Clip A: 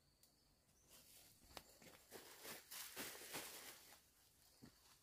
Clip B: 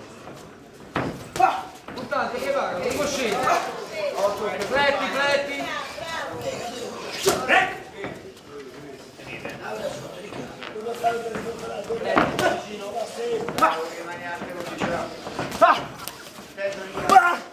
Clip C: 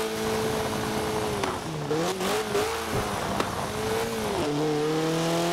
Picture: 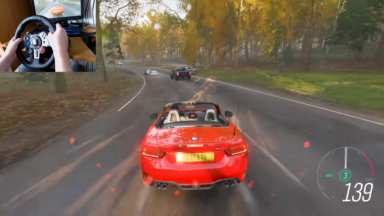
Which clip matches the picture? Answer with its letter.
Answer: C